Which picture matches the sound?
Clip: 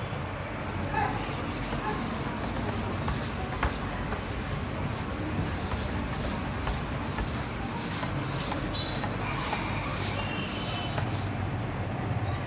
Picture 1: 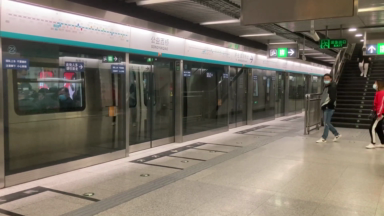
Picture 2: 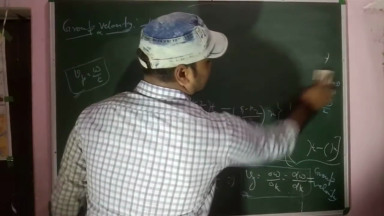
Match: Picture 2